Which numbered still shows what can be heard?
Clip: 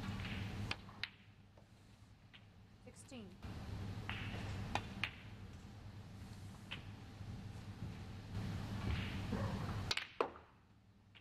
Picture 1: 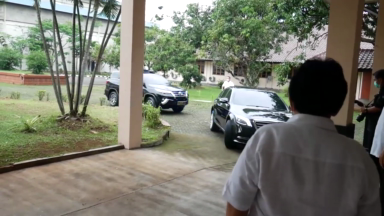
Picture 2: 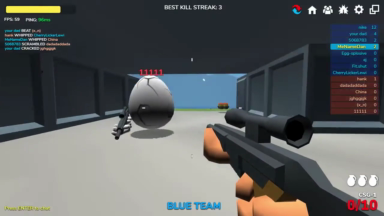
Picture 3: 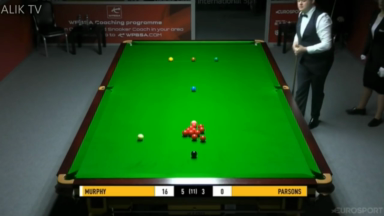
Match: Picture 3